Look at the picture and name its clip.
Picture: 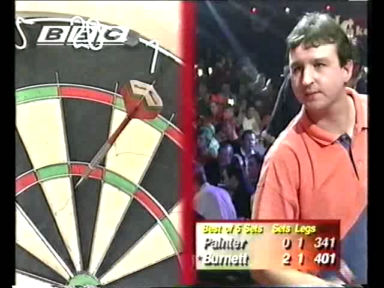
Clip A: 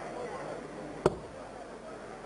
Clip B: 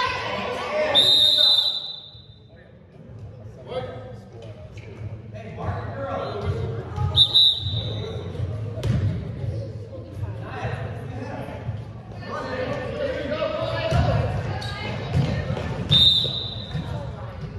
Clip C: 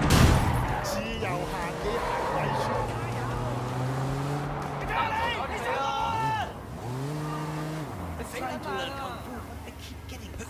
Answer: A